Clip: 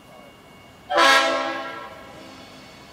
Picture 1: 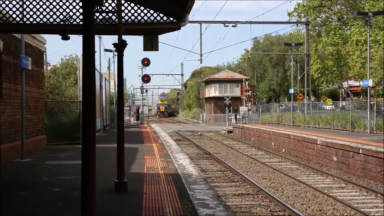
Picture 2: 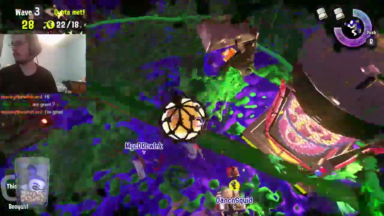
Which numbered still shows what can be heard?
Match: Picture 1